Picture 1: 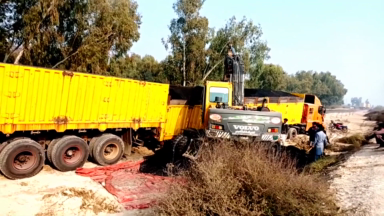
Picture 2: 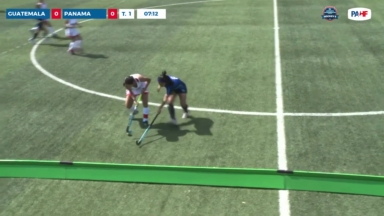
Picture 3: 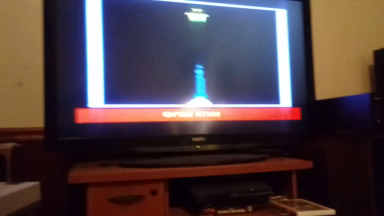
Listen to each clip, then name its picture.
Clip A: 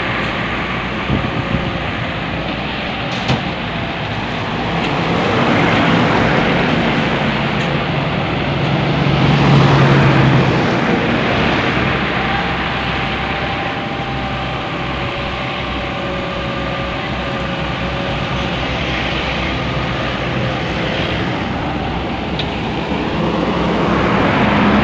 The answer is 1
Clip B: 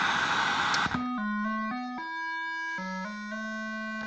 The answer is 3